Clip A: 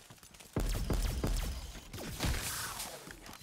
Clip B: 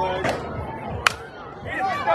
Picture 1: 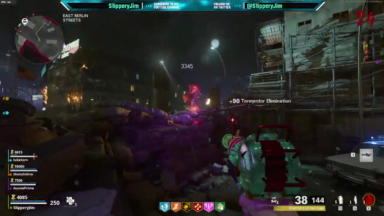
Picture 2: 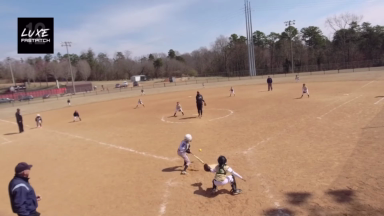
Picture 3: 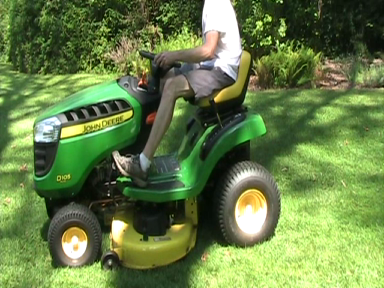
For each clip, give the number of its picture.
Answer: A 1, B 2